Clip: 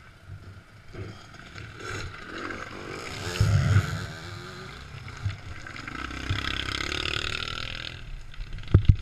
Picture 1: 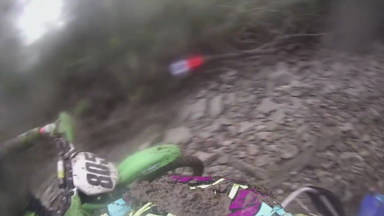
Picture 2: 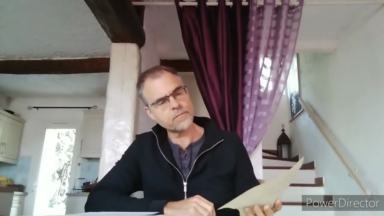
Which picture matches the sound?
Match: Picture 1